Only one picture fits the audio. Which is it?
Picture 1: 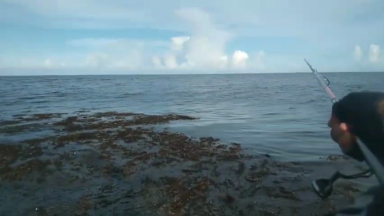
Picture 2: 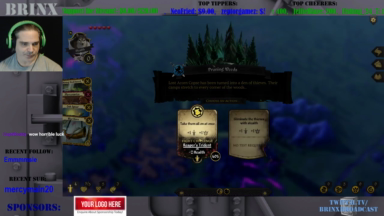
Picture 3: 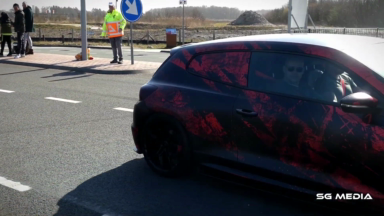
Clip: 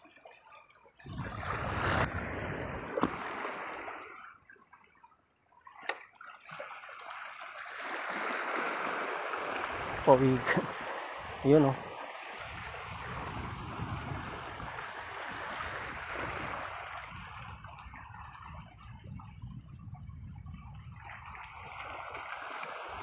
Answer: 1